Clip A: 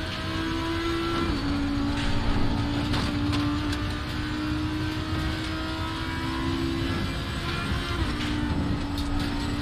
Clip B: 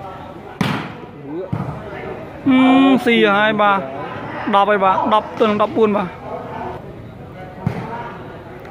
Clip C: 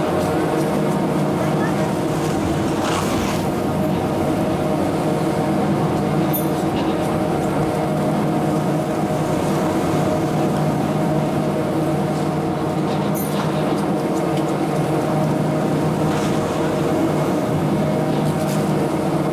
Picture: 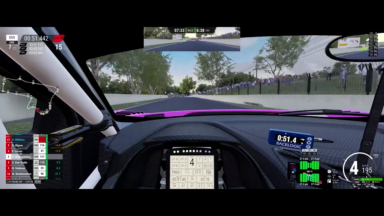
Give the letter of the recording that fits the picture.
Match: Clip A